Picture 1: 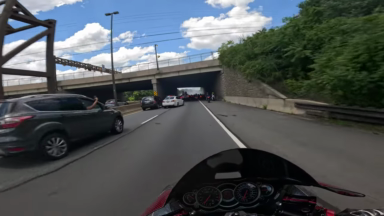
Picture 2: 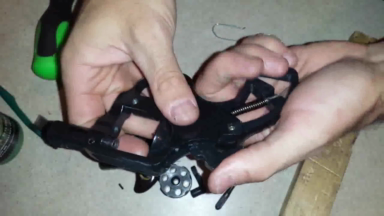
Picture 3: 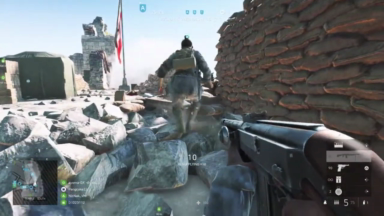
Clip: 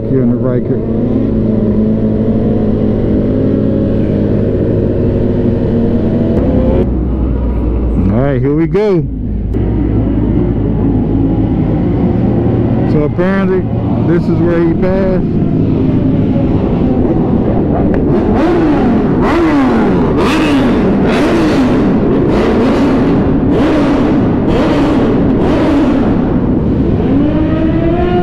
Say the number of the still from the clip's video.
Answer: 1